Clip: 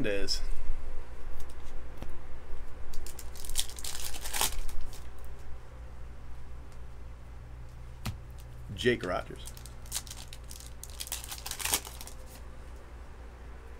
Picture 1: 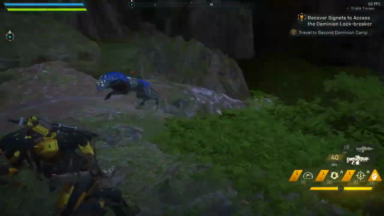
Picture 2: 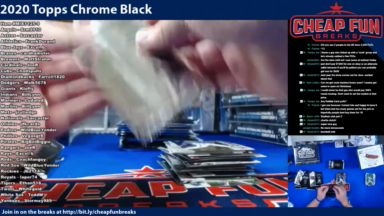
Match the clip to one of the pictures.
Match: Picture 2